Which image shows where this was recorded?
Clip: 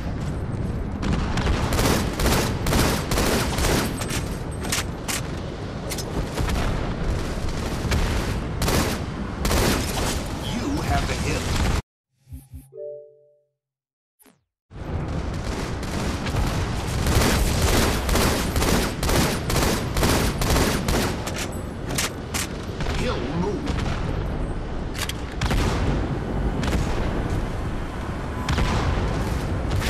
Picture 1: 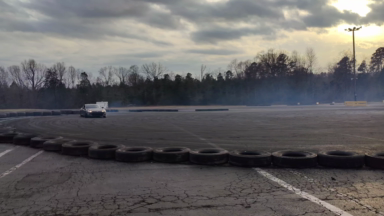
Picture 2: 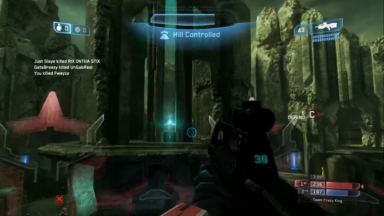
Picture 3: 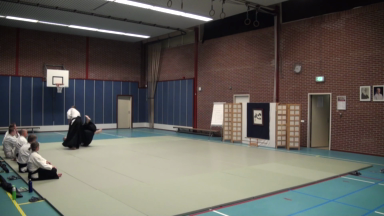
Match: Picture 2